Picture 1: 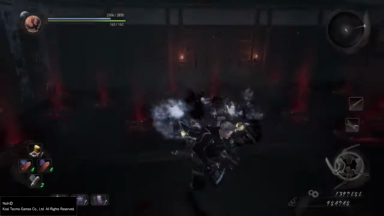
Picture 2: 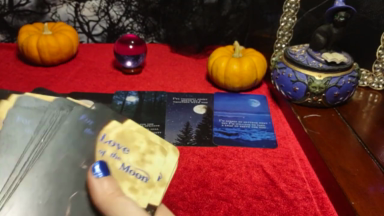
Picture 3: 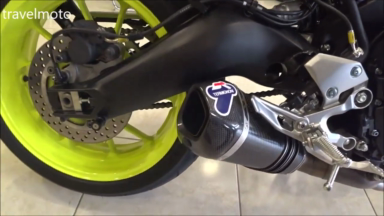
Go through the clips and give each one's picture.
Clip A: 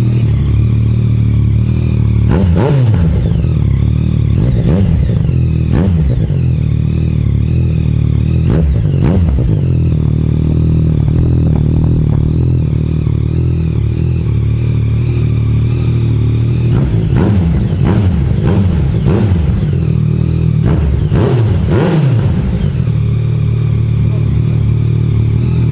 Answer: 3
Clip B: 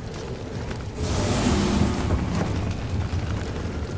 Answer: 1